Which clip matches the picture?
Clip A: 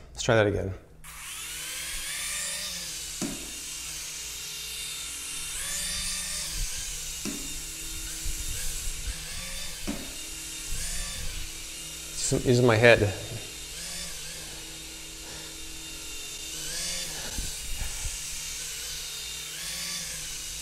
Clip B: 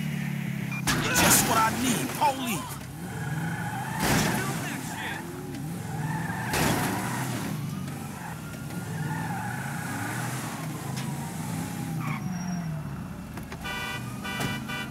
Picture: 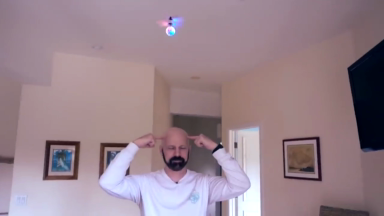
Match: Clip A